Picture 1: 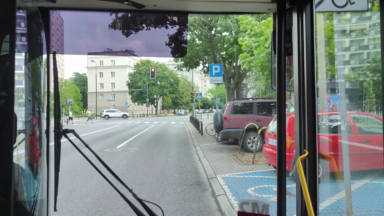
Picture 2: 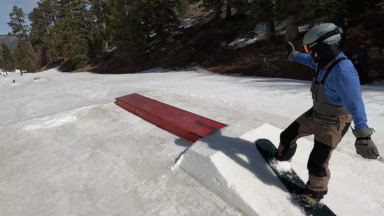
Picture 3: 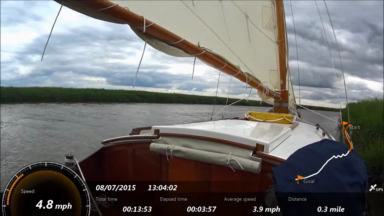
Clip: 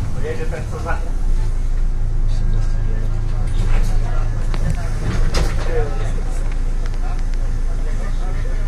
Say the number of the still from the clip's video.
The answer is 1